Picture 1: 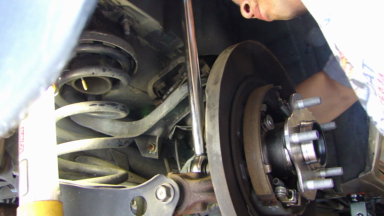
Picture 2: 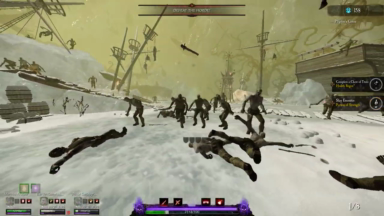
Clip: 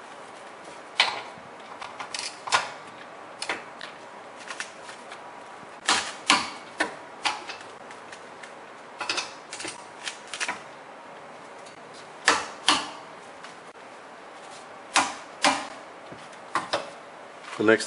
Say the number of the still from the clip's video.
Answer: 1